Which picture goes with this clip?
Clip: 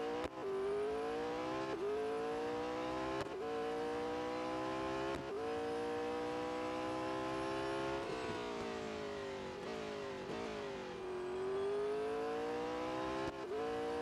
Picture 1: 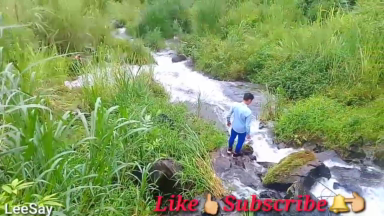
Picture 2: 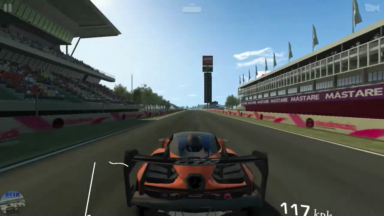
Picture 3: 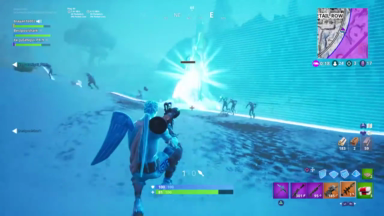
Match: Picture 2